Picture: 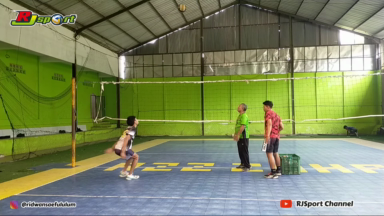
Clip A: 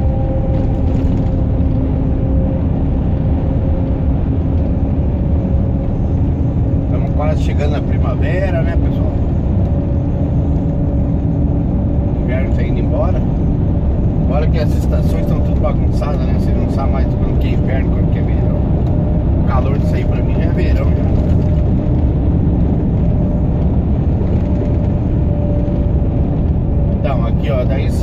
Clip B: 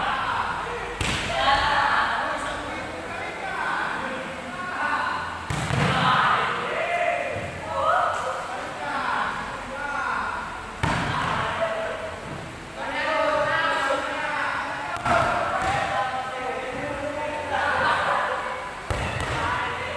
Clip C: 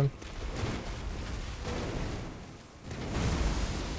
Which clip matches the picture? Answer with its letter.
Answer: B